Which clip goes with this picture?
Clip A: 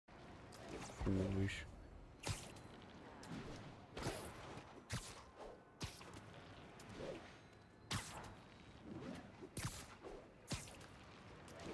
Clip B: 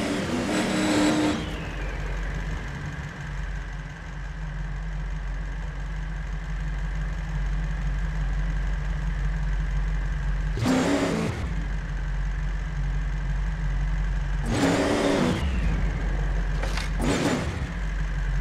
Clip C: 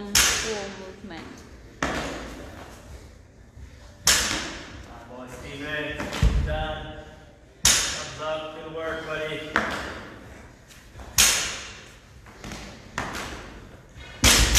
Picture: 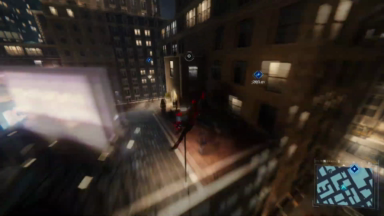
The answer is A